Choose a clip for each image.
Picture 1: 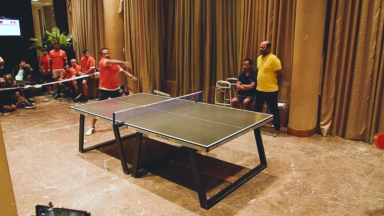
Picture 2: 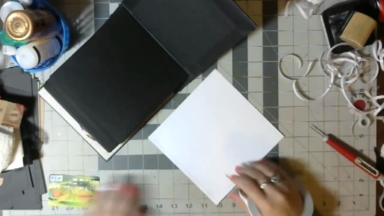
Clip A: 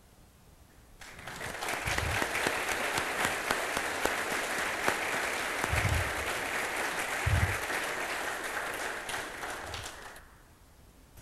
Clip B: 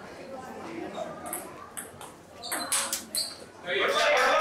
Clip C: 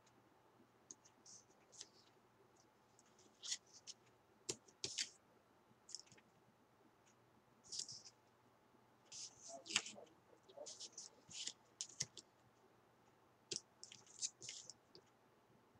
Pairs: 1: B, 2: C